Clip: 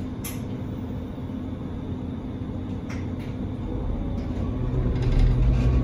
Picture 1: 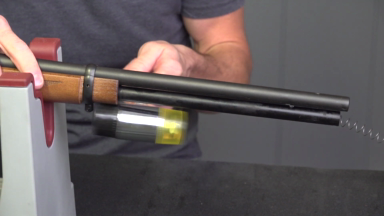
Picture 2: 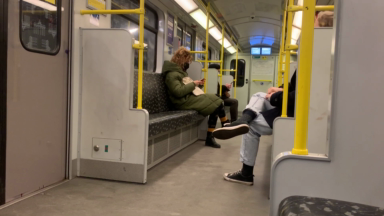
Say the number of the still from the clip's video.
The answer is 2